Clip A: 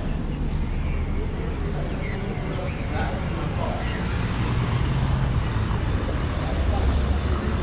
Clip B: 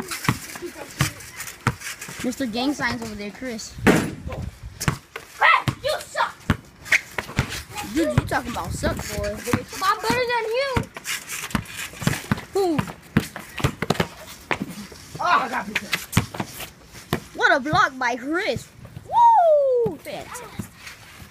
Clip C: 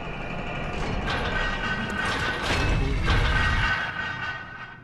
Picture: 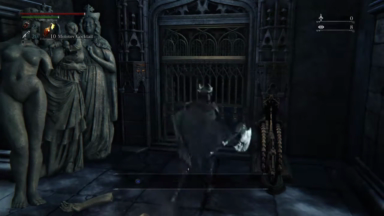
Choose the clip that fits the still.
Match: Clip C